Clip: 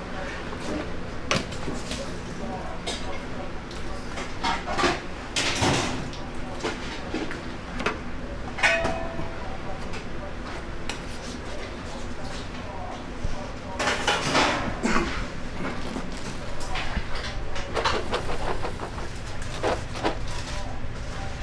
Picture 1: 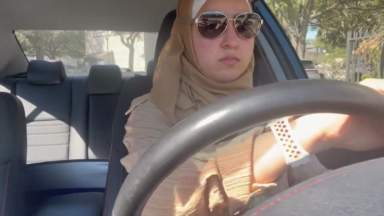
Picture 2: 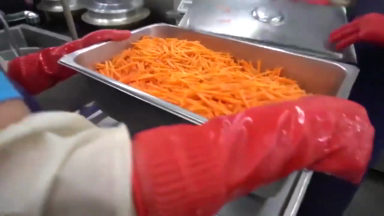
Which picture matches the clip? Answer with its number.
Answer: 2